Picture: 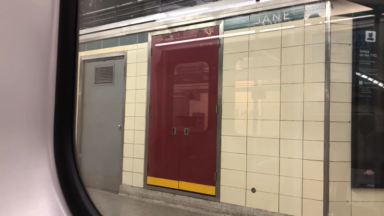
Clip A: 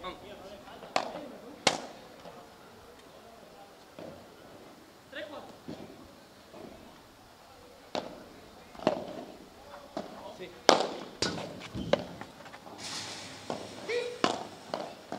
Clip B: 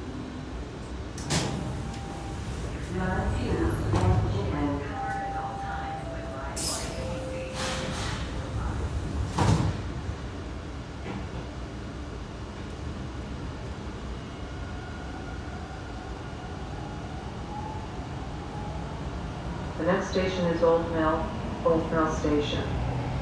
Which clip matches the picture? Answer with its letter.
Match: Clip B